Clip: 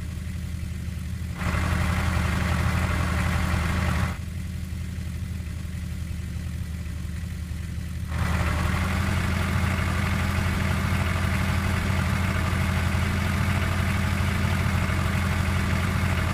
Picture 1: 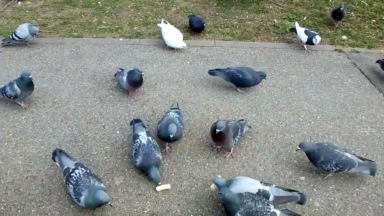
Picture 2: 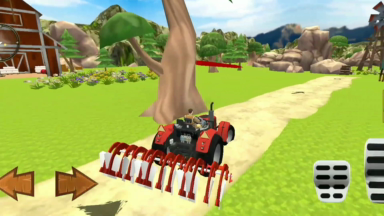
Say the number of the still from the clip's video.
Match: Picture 2